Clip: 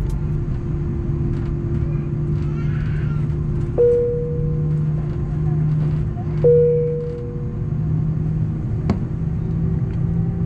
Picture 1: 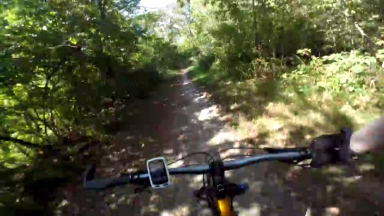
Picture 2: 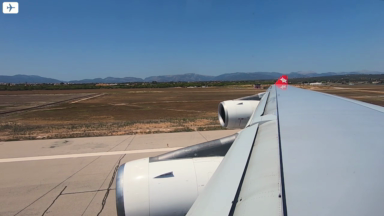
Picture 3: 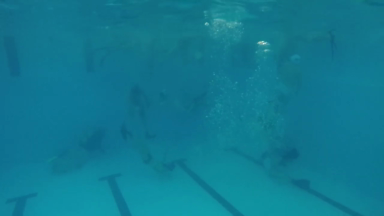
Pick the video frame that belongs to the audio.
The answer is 2